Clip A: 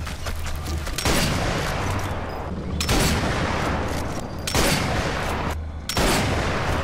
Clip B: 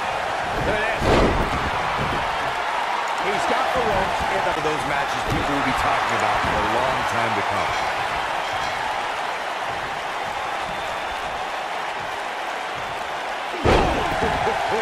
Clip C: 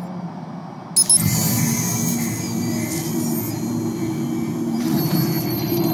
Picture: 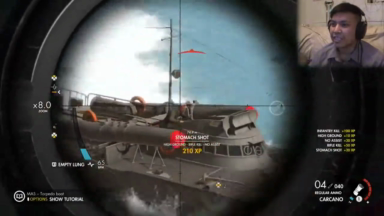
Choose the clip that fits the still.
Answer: A